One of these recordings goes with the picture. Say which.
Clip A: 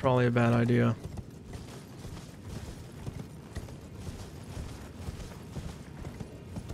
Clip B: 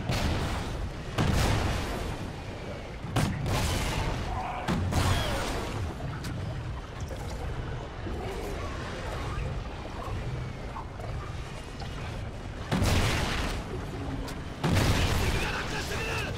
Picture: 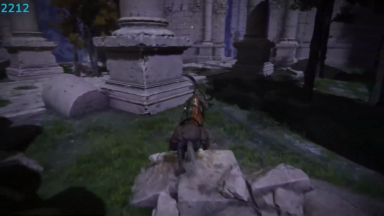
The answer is A